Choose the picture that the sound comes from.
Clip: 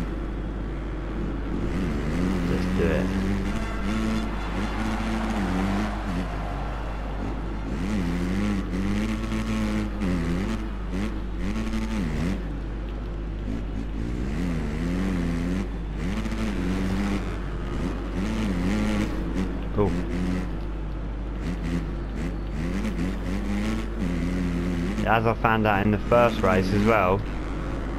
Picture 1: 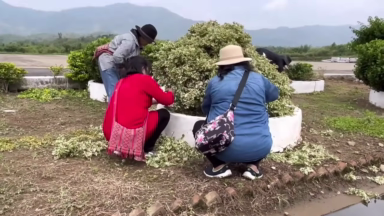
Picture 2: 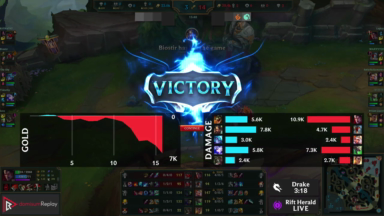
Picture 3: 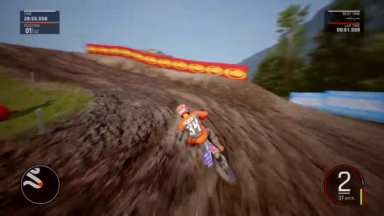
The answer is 3